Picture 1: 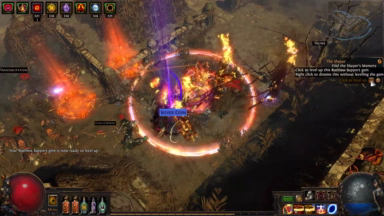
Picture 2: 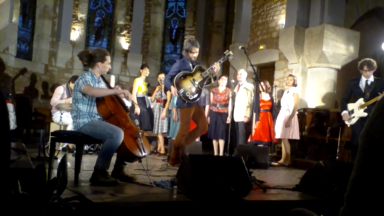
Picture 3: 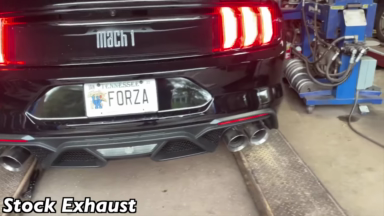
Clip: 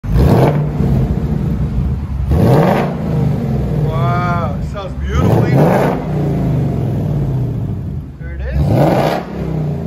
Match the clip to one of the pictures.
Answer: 3